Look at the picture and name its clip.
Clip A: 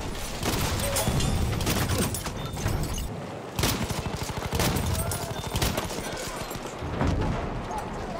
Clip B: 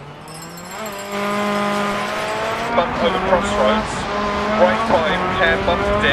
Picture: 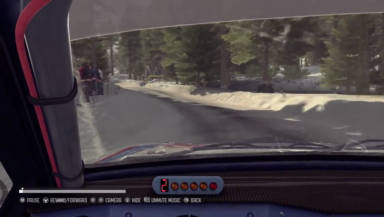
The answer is B